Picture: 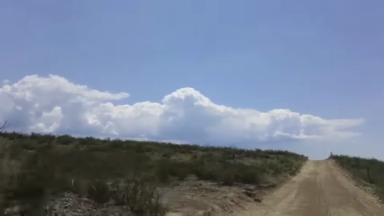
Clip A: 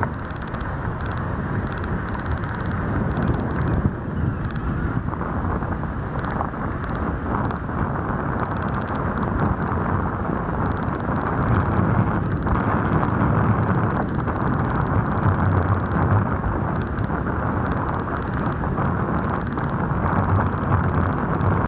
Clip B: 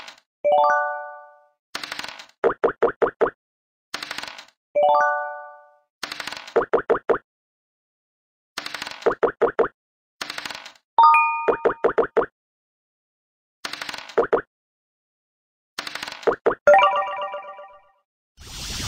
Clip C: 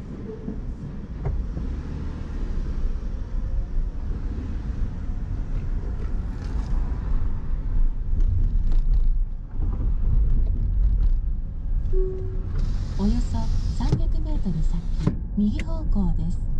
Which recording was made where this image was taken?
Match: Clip A